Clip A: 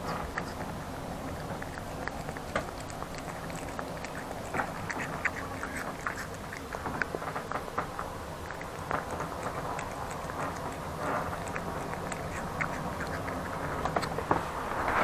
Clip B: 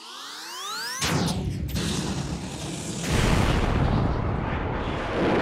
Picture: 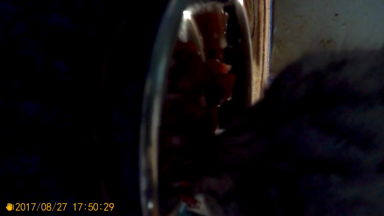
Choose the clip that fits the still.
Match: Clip A